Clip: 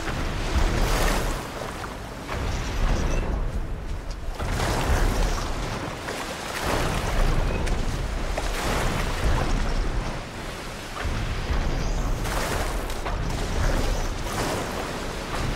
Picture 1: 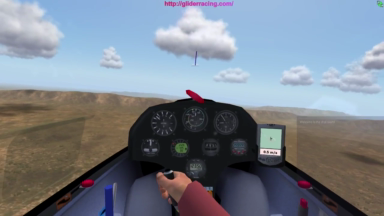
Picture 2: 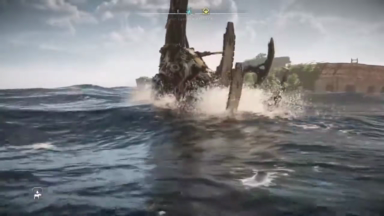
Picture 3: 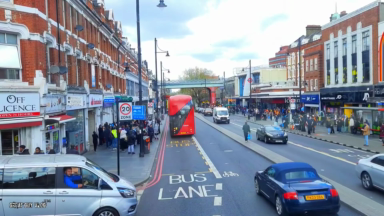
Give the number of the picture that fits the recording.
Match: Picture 2